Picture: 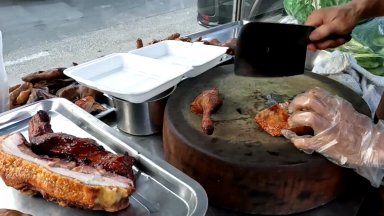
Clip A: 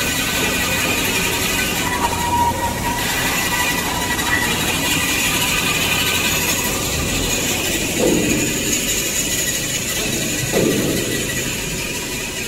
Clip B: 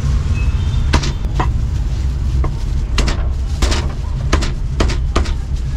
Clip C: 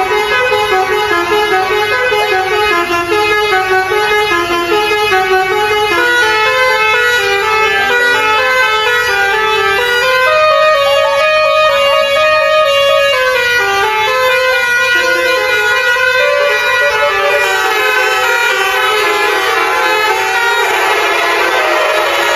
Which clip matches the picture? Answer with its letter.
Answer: B